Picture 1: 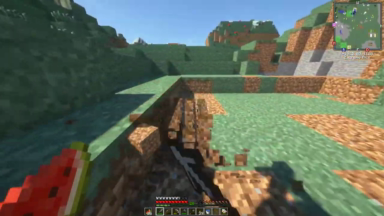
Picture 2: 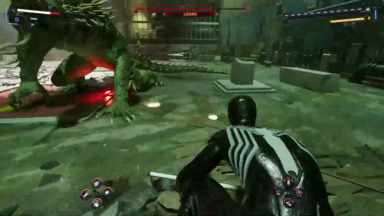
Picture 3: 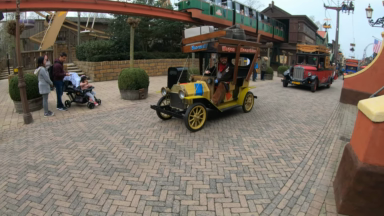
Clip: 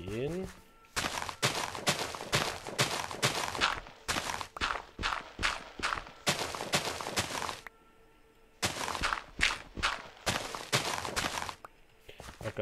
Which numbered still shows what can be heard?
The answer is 1